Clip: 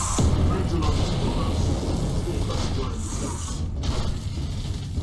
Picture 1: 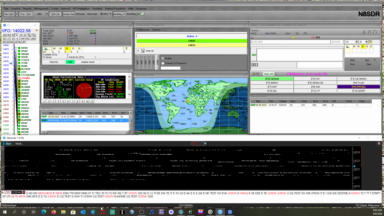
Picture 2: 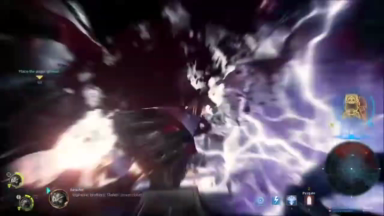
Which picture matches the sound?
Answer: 2